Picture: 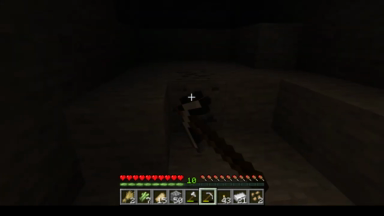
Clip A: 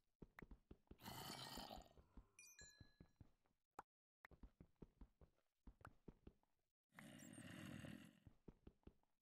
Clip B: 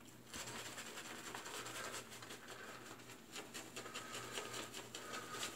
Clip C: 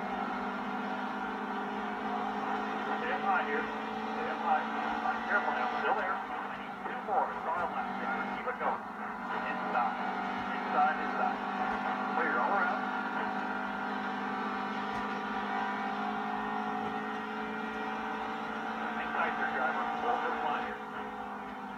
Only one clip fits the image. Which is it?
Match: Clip A